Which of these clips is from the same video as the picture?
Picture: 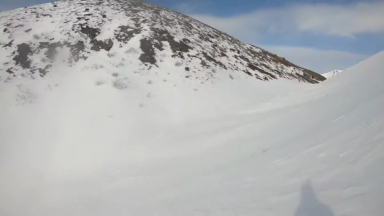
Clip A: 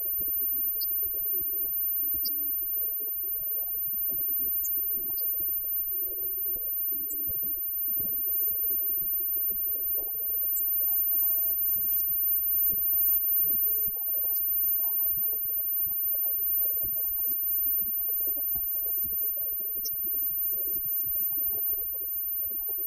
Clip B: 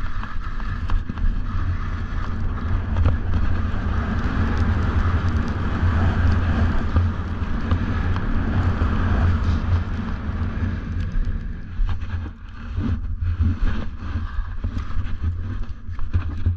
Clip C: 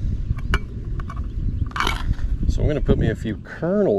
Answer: B